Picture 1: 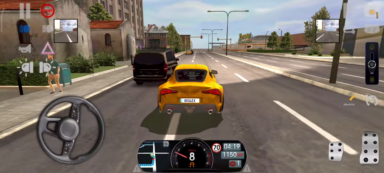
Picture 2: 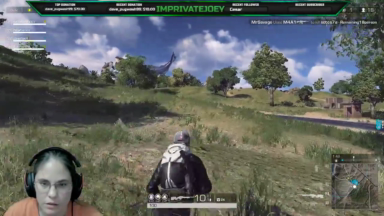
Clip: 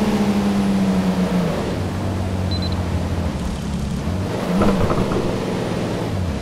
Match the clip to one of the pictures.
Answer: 1